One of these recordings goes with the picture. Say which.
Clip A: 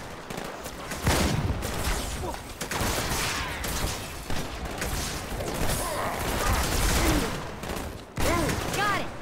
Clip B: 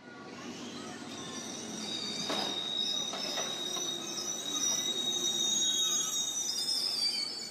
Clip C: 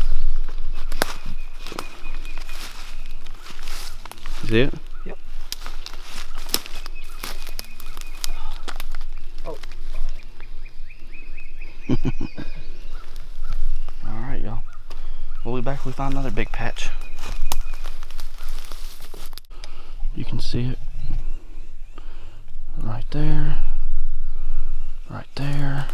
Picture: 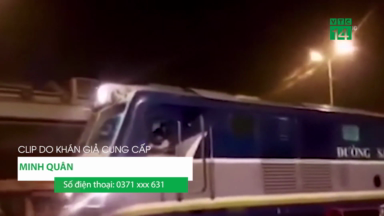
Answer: B